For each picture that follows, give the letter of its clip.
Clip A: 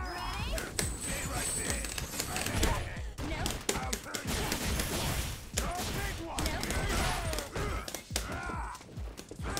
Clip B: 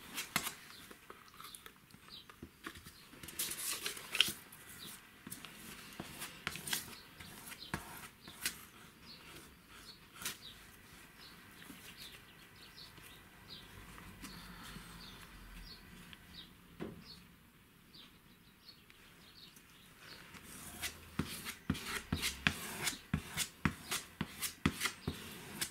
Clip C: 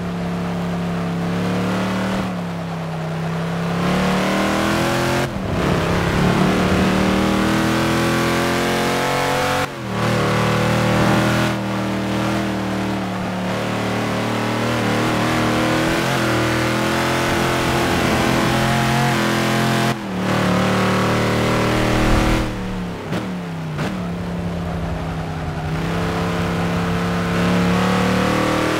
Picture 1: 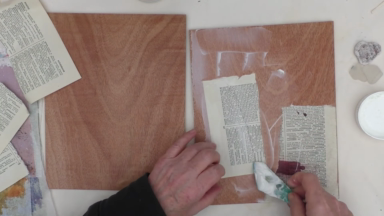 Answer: B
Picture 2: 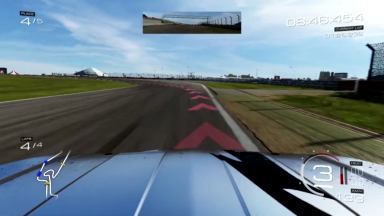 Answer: C